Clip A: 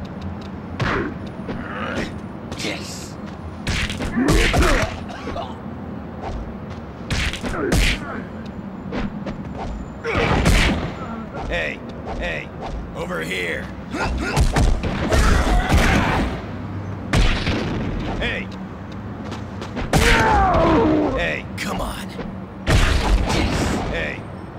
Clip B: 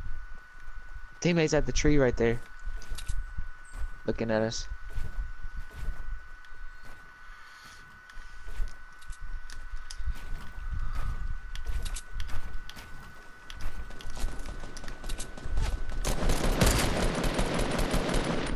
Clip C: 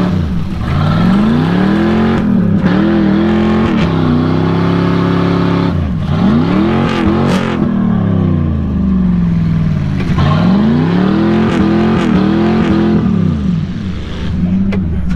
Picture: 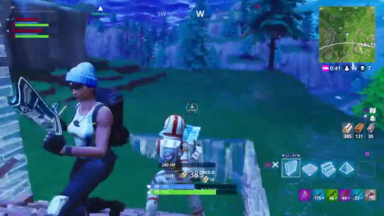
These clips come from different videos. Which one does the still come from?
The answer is B